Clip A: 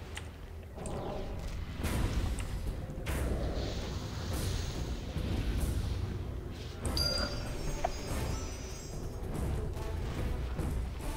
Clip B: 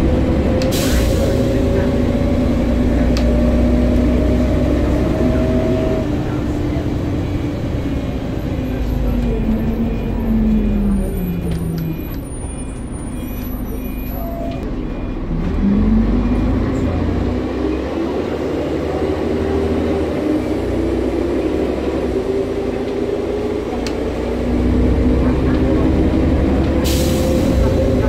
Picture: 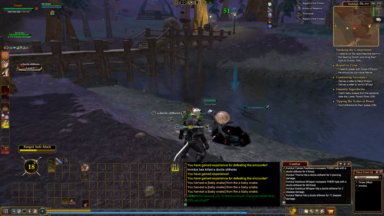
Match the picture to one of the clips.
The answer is A